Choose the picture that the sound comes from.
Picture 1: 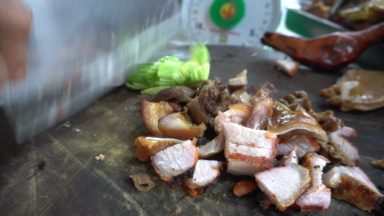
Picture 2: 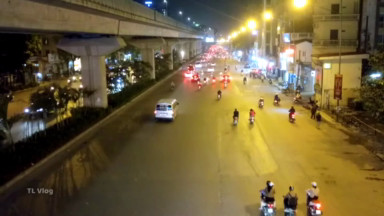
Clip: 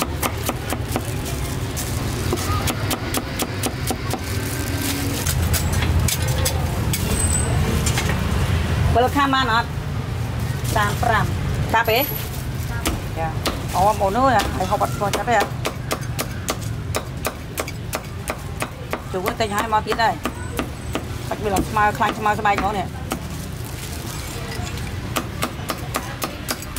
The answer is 1